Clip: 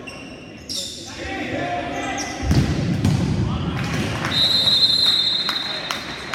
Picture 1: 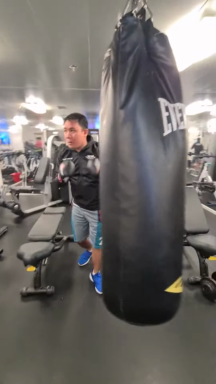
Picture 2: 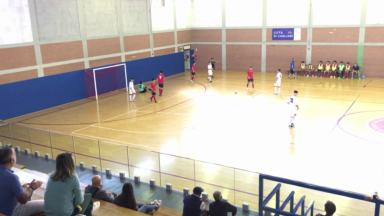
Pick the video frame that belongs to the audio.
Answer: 2